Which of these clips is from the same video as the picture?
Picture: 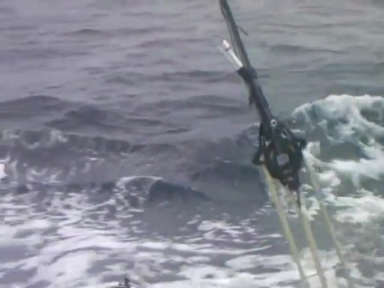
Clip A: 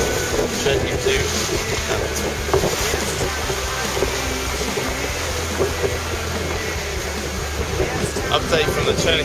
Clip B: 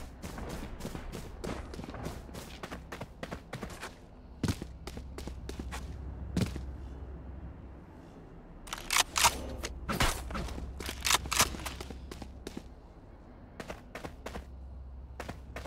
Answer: A